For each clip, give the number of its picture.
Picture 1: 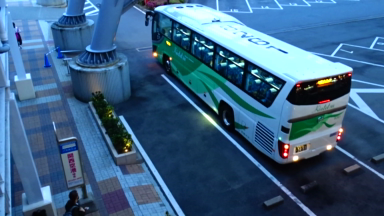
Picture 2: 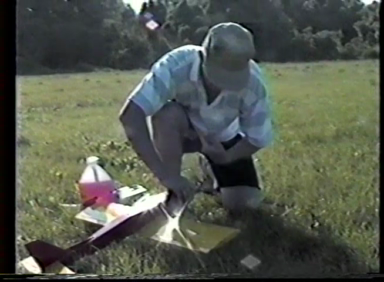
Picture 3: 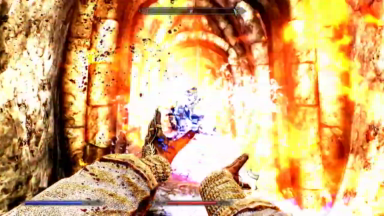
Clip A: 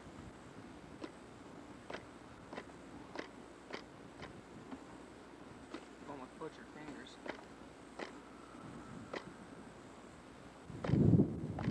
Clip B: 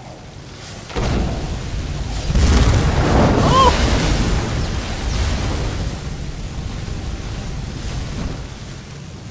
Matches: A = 2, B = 3